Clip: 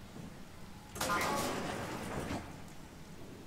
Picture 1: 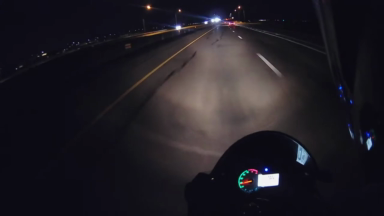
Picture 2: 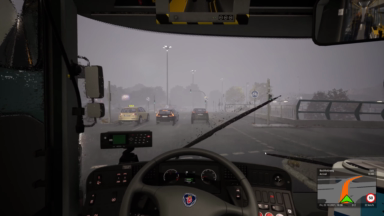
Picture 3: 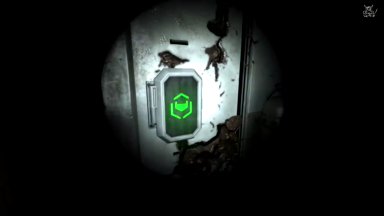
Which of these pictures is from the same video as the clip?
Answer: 3